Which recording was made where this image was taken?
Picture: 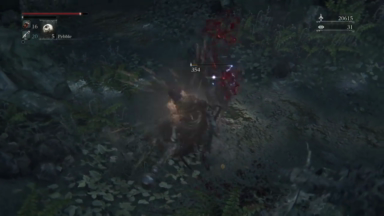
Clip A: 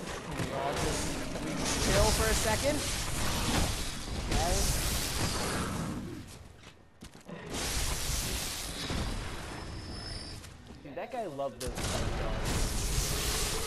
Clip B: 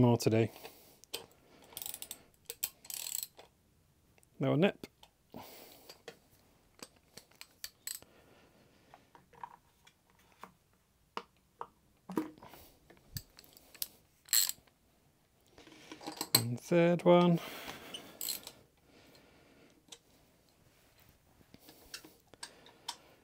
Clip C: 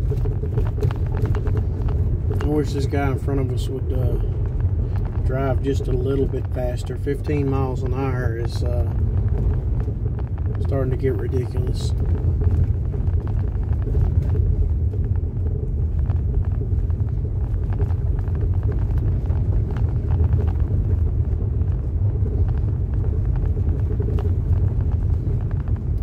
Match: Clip A